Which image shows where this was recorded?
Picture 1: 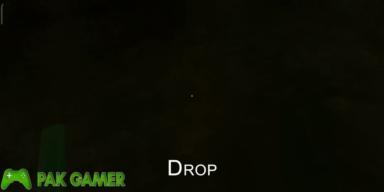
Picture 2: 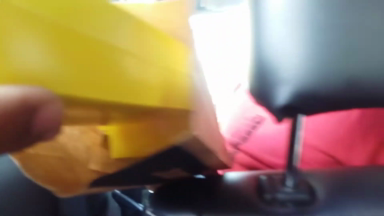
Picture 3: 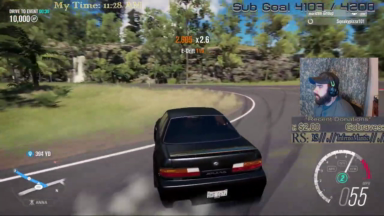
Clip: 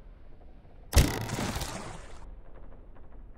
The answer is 1